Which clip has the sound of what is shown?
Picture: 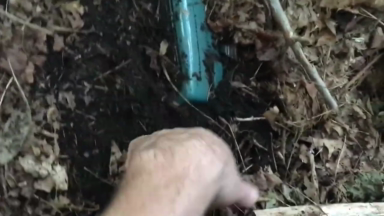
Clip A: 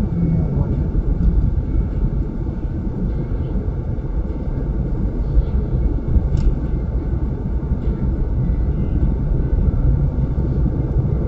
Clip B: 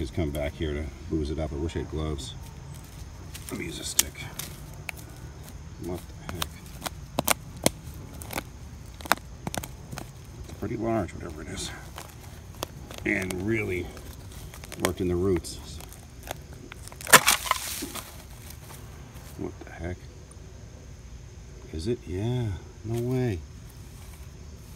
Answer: B